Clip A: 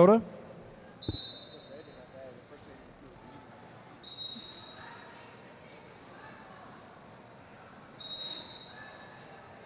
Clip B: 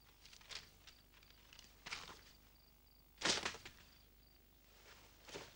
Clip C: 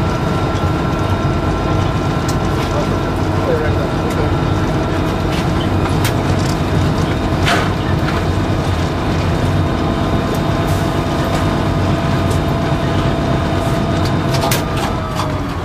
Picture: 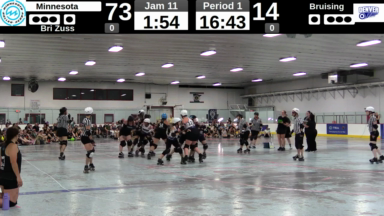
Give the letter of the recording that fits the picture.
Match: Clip A